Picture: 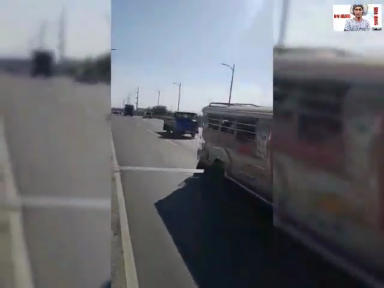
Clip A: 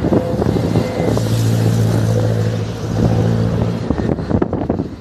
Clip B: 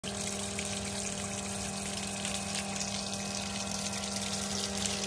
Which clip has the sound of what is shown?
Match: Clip A